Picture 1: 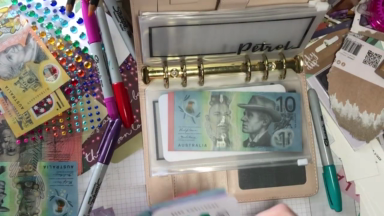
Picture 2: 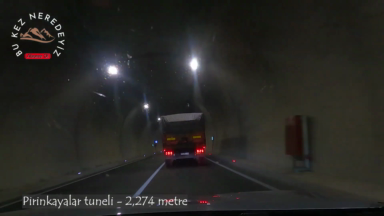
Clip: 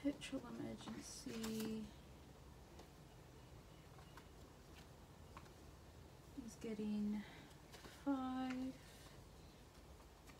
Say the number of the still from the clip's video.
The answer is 1